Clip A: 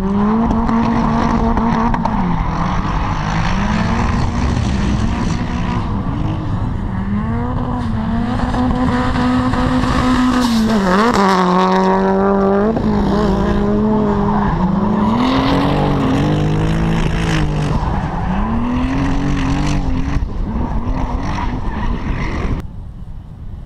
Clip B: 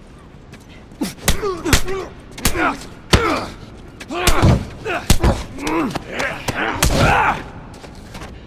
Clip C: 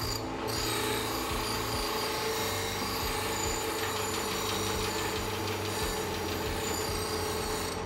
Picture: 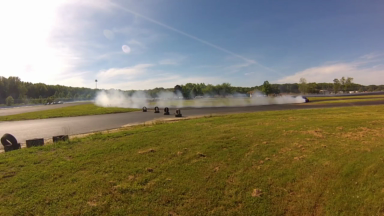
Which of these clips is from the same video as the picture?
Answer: A